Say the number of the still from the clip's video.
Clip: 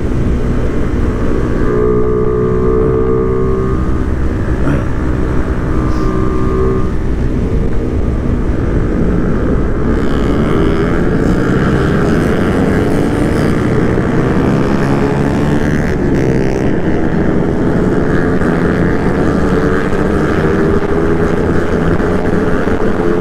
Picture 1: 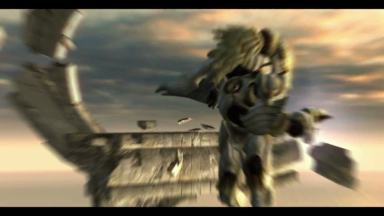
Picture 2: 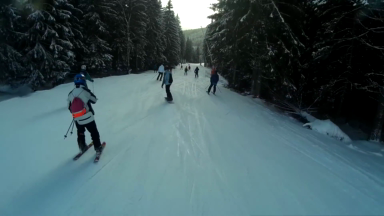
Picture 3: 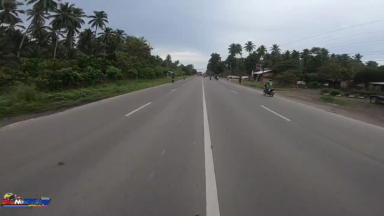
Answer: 3